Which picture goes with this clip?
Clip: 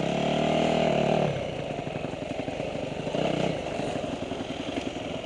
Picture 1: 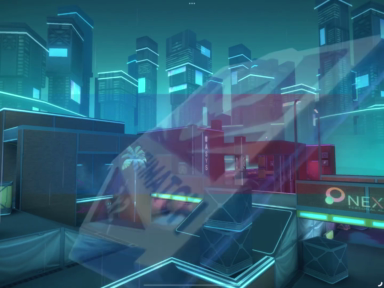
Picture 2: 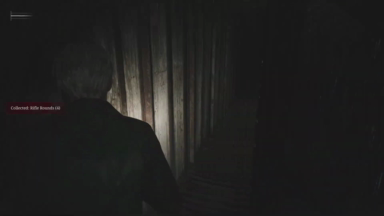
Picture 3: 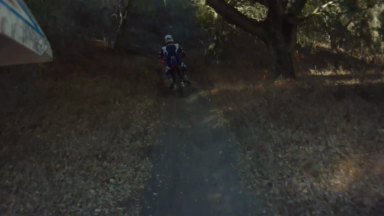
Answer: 3